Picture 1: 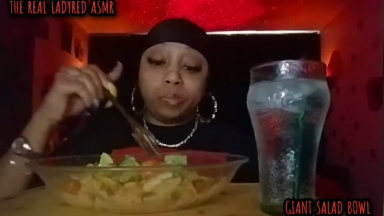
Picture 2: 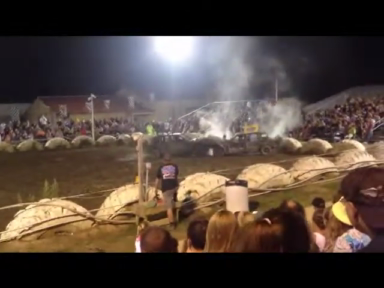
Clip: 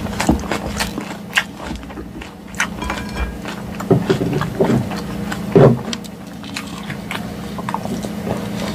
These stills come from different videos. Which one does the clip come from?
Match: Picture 1